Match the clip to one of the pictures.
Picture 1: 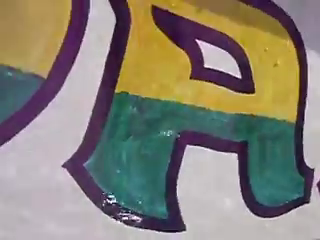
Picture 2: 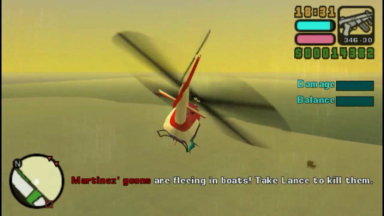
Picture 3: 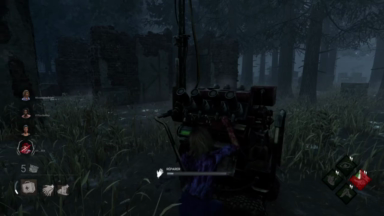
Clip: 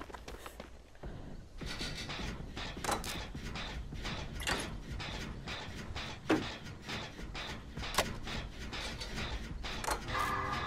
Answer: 3